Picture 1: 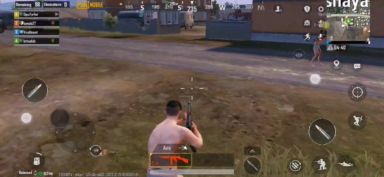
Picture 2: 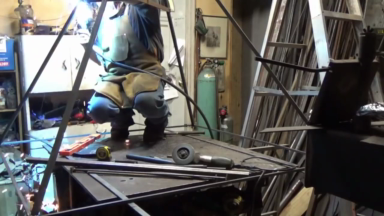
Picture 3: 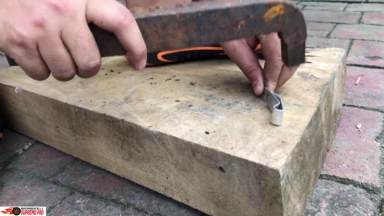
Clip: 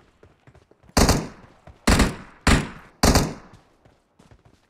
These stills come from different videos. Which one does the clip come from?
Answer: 1